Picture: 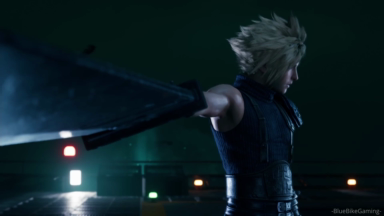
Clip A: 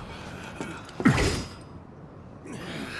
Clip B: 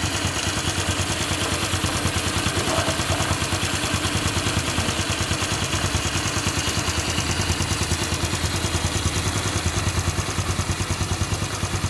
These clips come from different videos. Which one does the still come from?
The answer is A